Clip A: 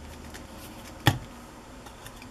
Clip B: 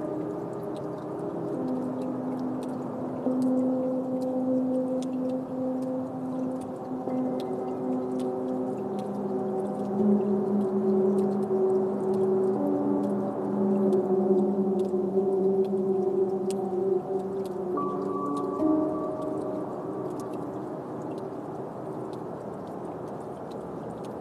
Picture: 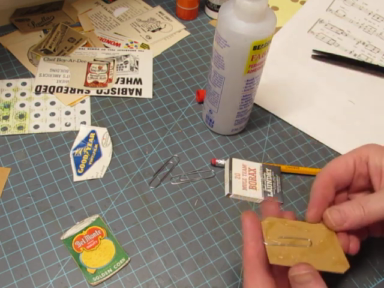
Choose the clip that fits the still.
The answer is A